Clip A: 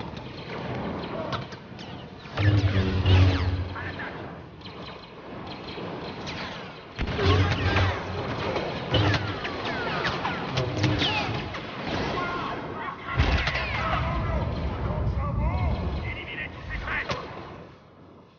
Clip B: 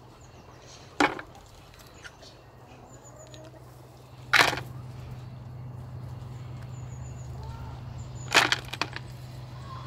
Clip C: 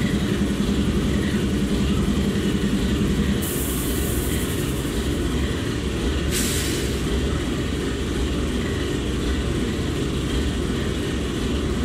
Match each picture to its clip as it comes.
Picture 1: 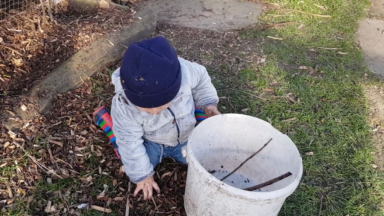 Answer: B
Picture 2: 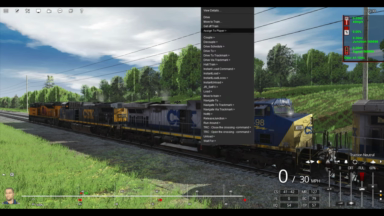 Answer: C